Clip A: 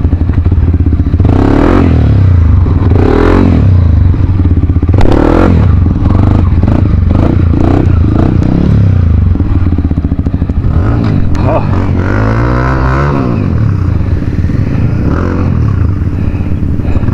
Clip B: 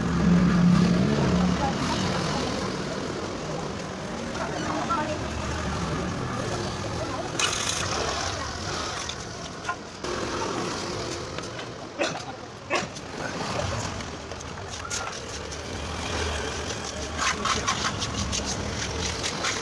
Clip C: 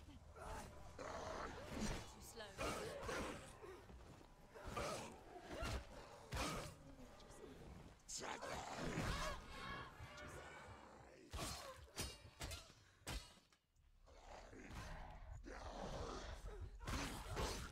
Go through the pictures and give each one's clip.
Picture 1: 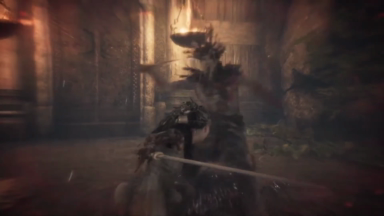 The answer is C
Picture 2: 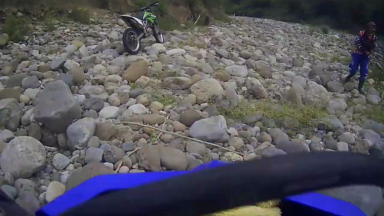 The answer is A